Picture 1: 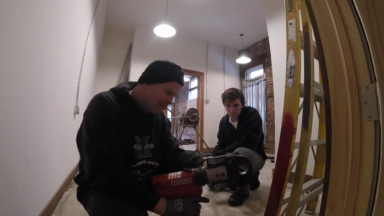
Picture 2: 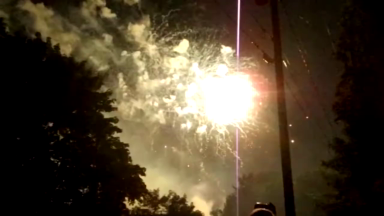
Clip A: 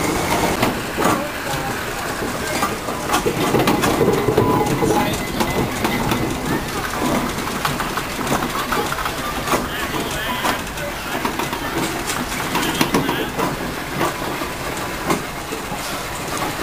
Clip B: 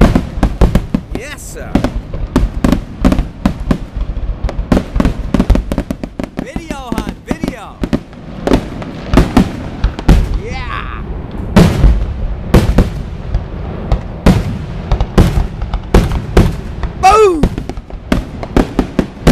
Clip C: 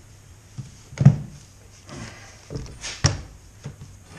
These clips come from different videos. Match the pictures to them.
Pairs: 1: C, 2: B